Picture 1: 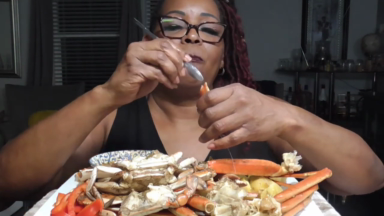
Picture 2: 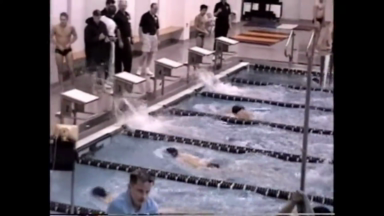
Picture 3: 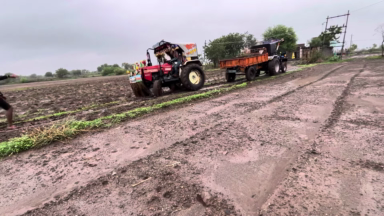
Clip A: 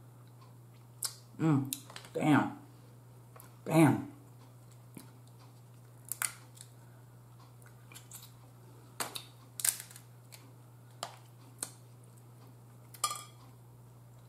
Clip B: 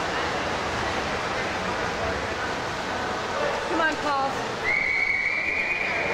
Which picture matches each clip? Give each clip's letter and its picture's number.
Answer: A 1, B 2